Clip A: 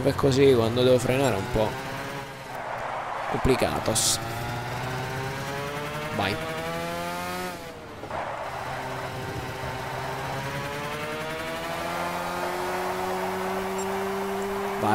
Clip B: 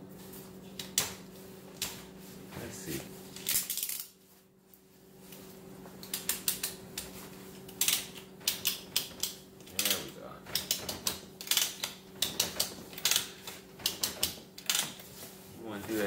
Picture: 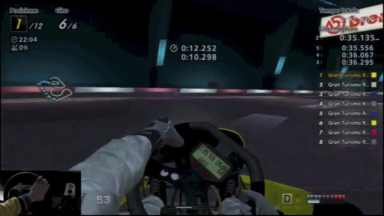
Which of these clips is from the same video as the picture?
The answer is A